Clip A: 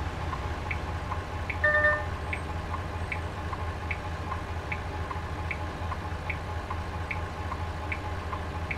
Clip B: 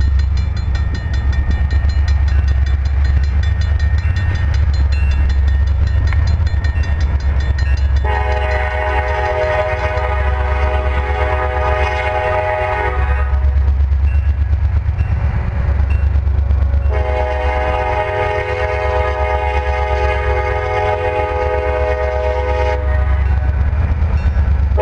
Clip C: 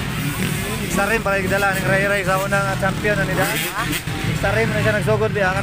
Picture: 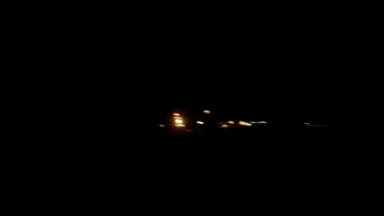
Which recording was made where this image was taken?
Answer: B